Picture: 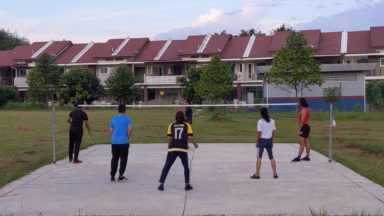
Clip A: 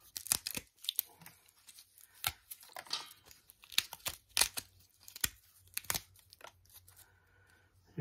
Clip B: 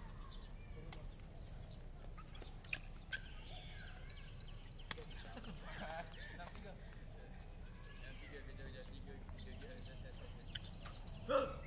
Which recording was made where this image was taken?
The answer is B